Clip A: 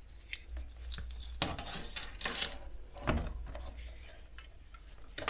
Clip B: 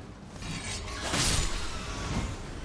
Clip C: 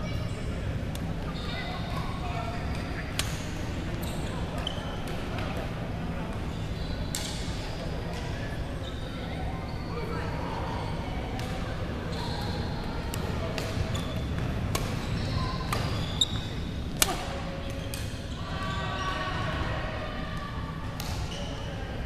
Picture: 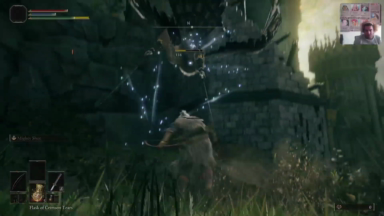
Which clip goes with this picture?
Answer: B